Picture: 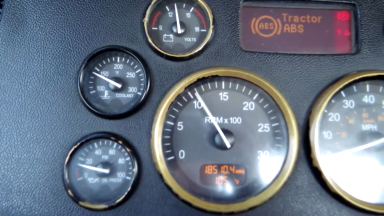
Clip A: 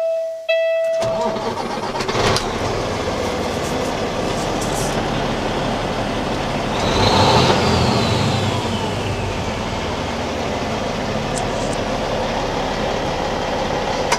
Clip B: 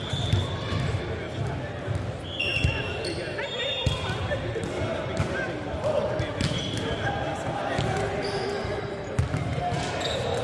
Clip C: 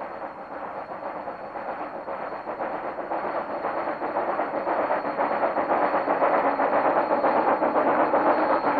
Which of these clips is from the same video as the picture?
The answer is A